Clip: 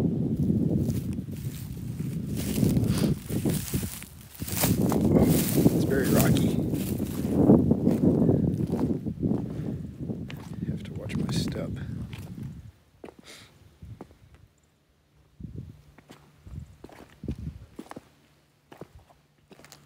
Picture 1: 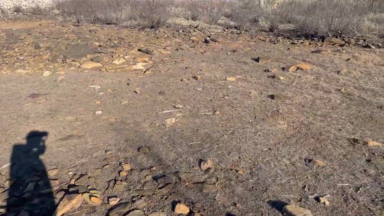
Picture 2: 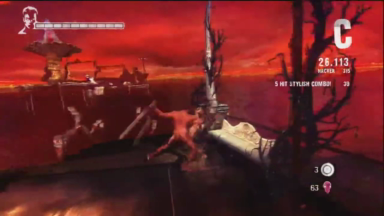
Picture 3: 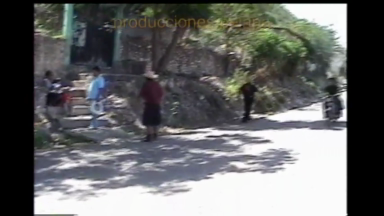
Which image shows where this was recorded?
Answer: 1